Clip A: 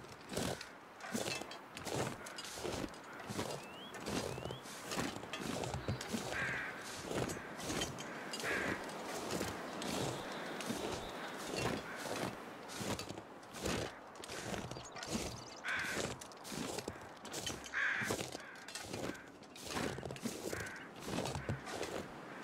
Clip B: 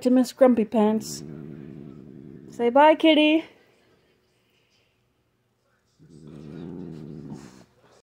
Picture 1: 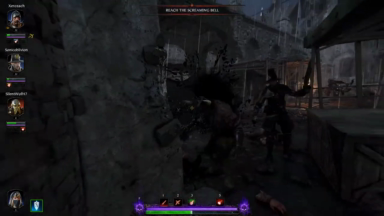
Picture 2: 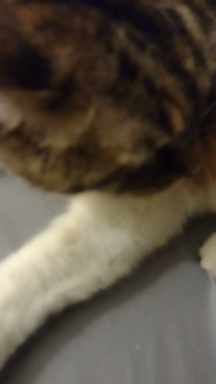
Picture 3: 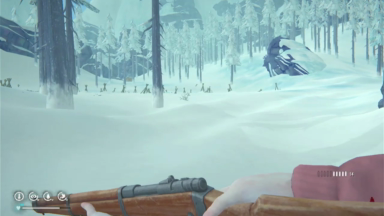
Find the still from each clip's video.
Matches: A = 3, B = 2